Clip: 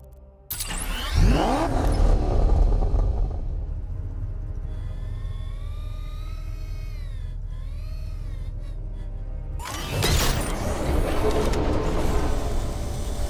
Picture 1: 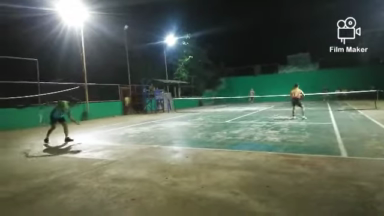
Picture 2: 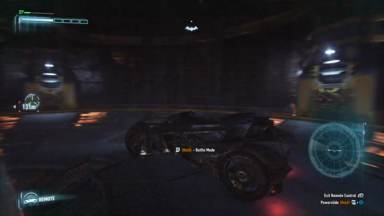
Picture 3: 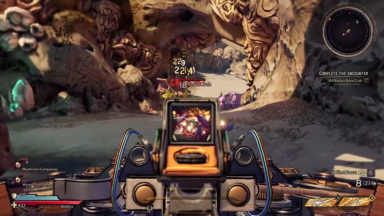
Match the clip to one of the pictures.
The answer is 2